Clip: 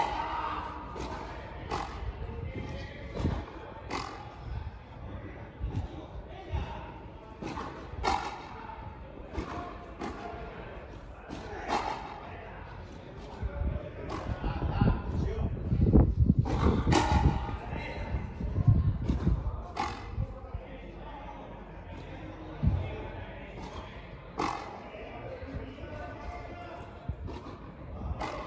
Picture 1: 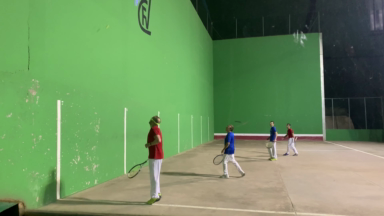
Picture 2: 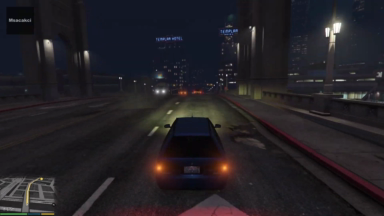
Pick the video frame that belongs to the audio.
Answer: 1